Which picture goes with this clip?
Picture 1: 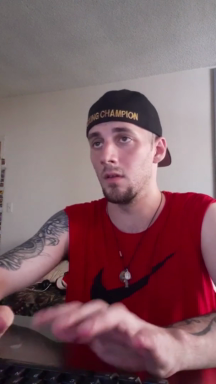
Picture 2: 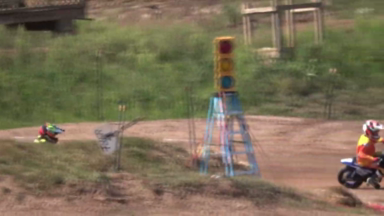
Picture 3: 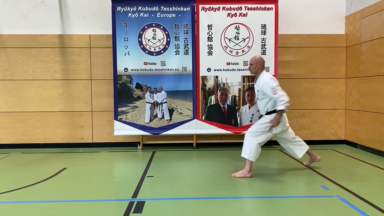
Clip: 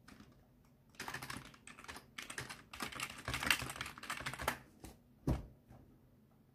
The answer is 1